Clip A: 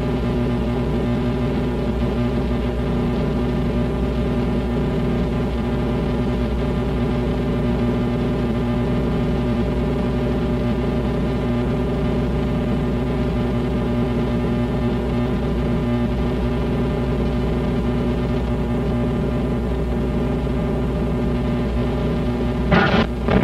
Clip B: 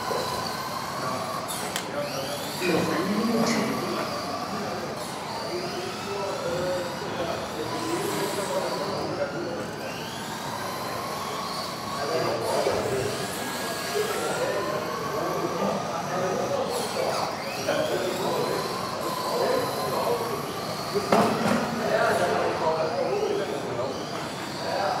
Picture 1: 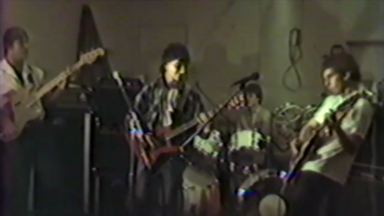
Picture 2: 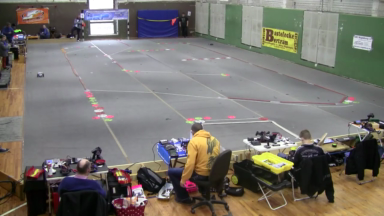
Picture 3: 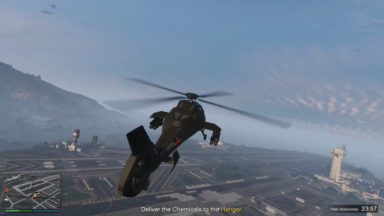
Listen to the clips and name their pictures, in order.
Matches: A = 1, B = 2